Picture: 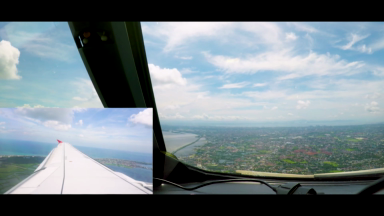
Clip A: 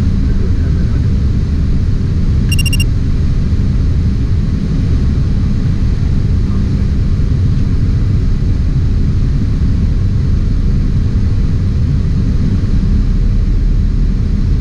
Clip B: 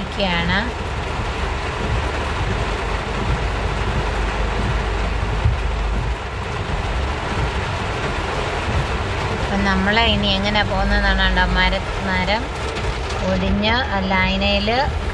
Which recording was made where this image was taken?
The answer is A